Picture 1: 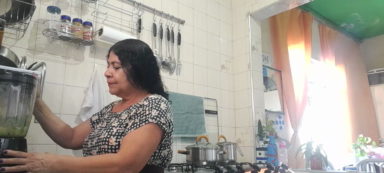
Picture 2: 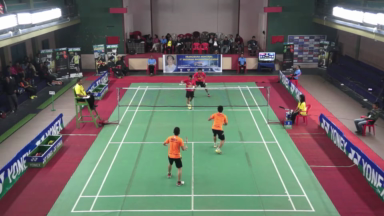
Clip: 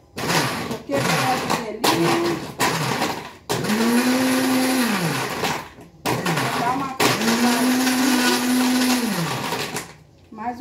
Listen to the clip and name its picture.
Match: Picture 1